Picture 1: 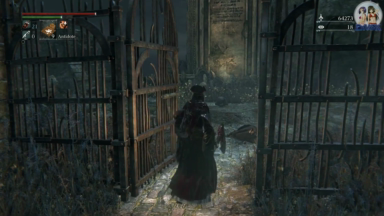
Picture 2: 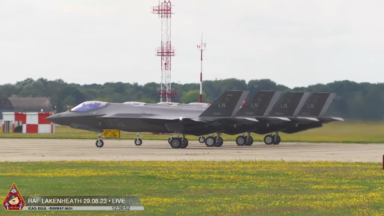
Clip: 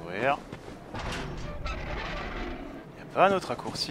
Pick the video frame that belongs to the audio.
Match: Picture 1